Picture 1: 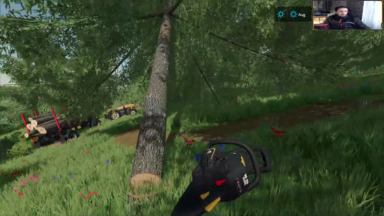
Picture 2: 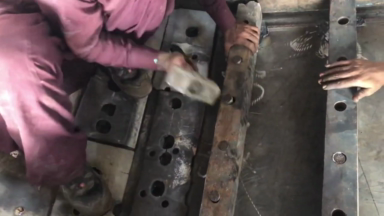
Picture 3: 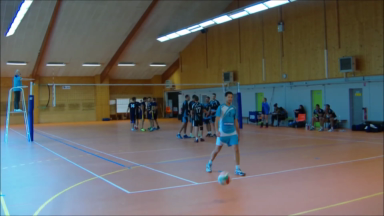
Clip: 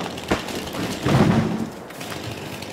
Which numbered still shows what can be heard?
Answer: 1